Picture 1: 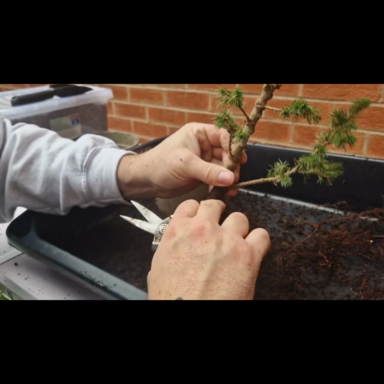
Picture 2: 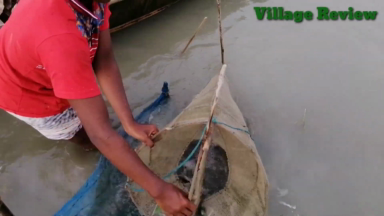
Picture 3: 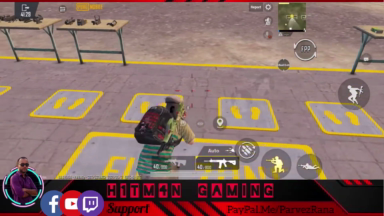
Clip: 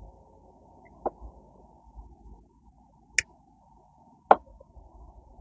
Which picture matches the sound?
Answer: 1